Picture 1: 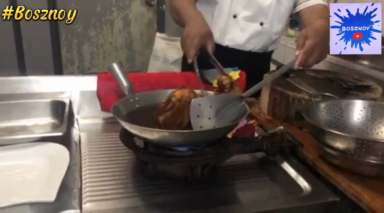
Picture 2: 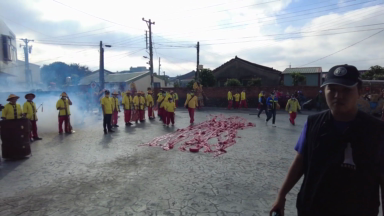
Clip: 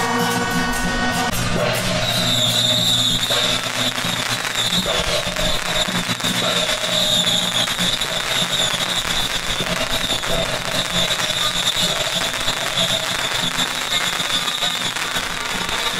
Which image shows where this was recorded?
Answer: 2